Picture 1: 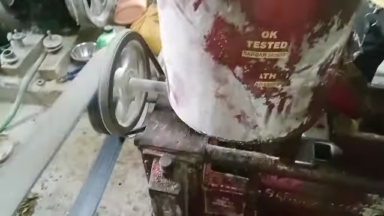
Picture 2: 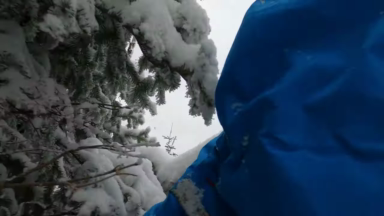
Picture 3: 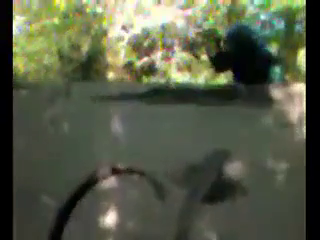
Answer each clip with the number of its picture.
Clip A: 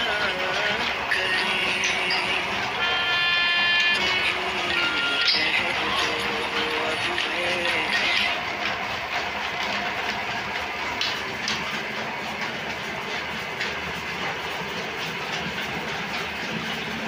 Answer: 1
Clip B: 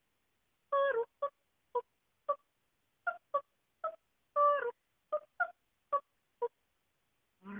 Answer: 3